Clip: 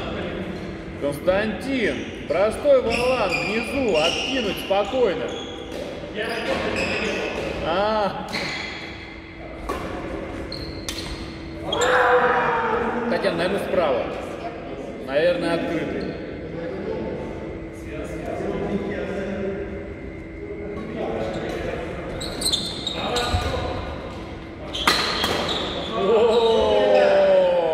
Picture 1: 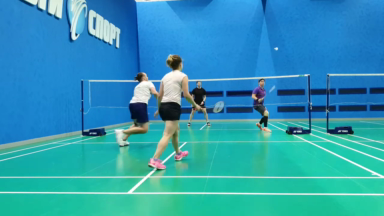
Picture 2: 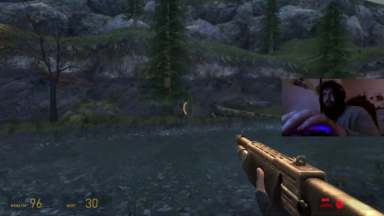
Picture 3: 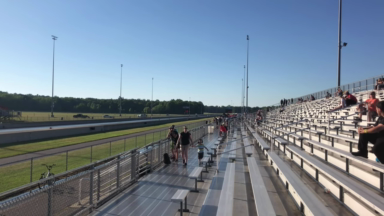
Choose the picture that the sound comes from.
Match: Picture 1